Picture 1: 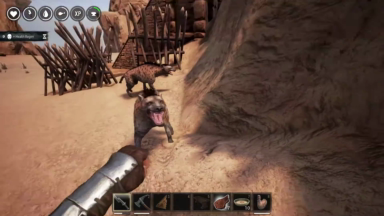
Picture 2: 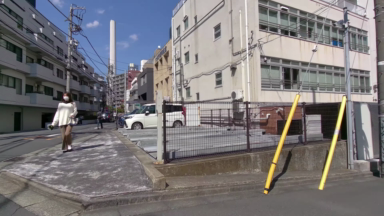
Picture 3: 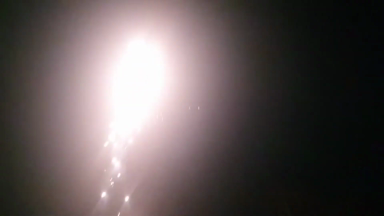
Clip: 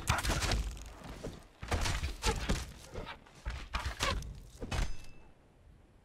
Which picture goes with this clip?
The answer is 1